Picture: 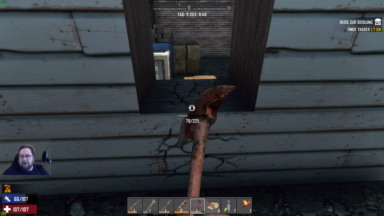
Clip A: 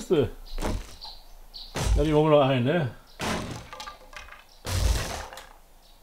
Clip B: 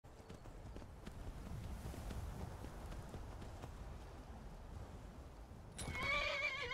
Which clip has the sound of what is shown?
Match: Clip A